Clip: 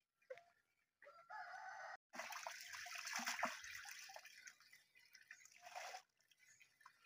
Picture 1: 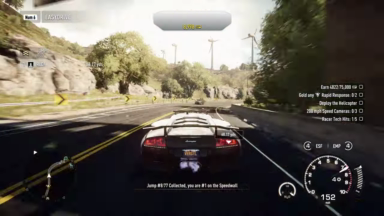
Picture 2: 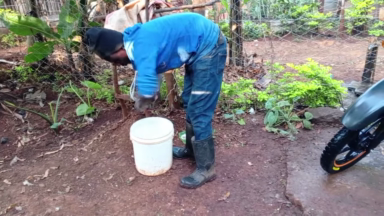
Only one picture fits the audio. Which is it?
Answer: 2